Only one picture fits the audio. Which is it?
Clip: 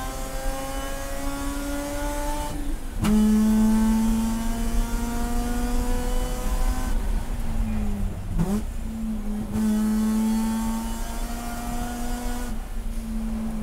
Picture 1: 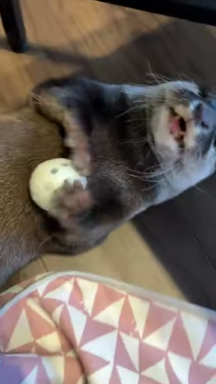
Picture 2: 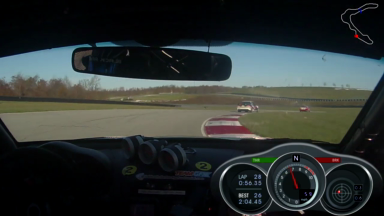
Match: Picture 2